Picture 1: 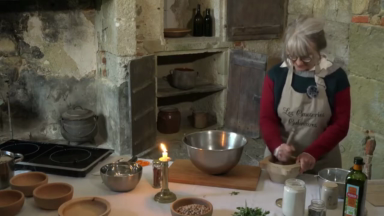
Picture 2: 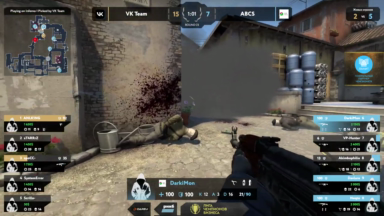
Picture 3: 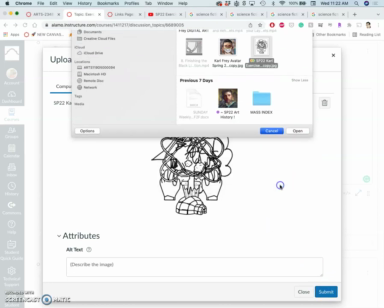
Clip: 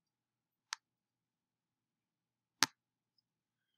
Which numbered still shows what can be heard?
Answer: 3